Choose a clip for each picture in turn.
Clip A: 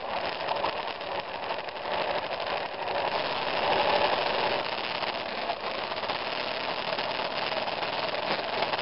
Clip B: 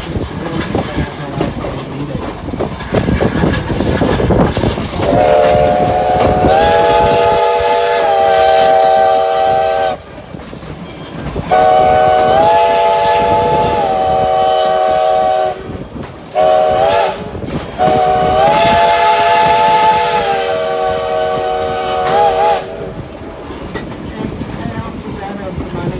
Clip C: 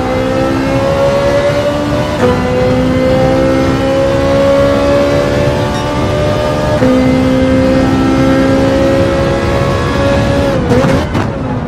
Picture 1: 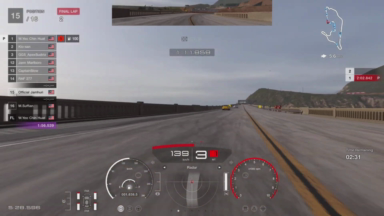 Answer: C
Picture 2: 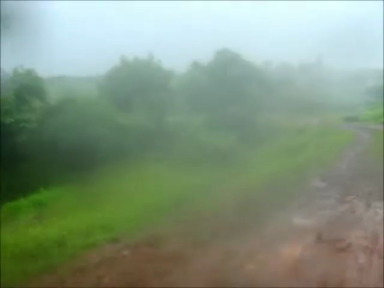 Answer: A